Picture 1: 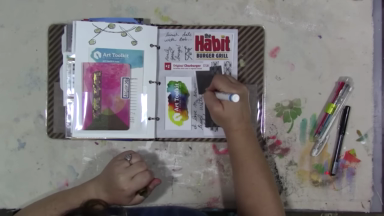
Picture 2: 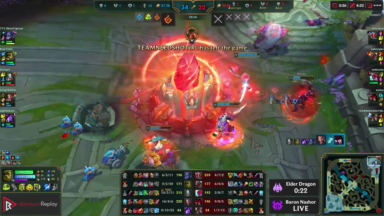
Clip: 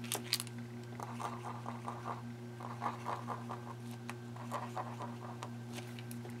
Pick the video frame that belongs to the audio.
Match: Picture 1